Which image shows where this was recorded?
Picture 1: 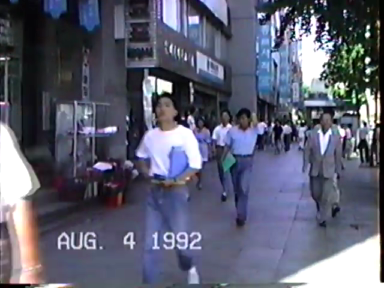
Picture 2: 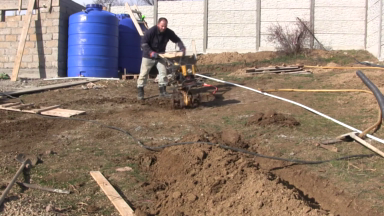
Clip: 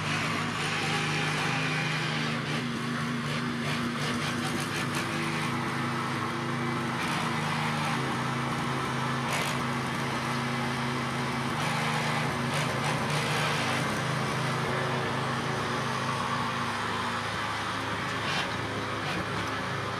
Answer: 2